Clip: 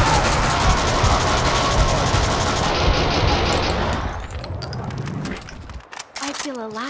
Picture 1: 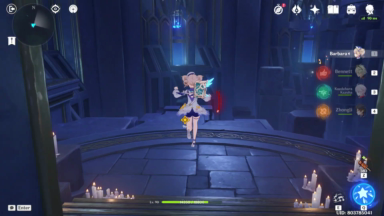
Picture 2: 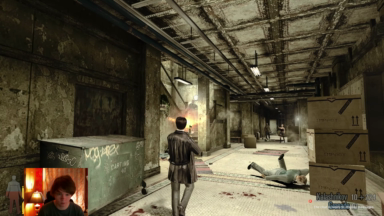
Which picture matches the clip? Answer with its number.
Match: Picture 2